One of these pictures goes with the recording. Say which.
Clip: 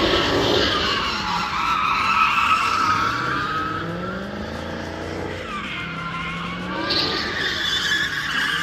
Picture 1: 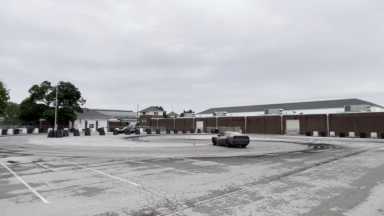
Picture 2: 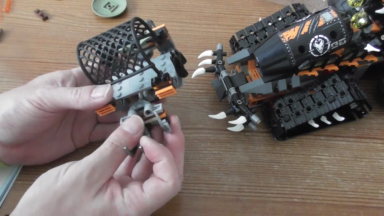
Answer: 1